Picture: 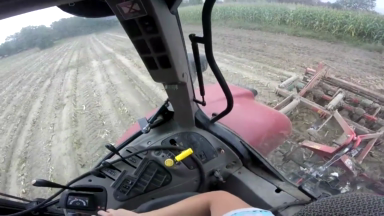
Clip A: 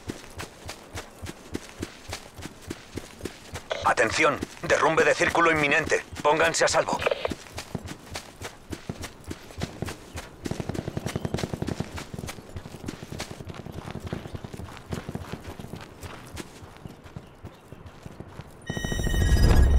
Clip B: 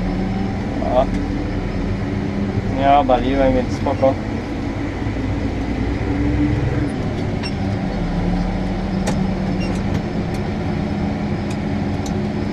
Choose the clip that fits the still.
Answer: B